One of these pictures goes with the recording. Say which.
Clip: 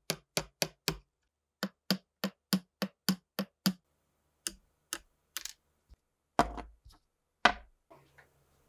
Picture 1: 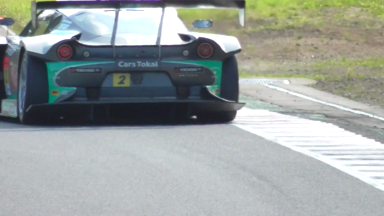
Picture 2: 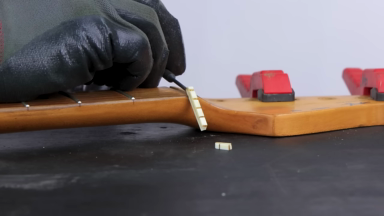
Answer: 2